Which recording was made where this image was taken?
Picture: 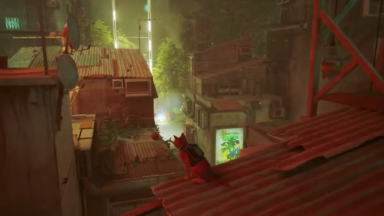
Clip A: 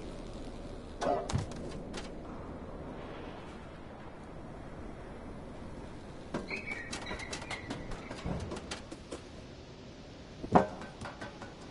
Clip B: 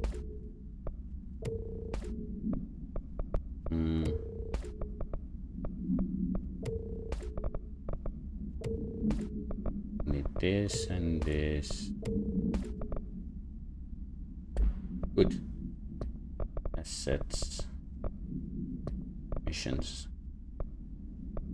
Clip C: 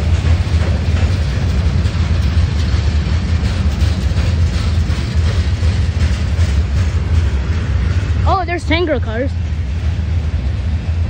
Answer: A